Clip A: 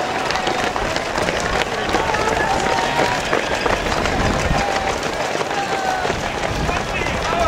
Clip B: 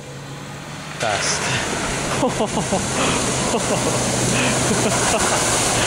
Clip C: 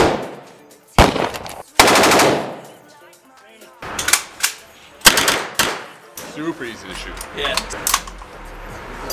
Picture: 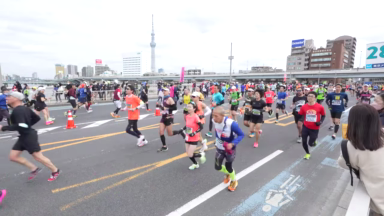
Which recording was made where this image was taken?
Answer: A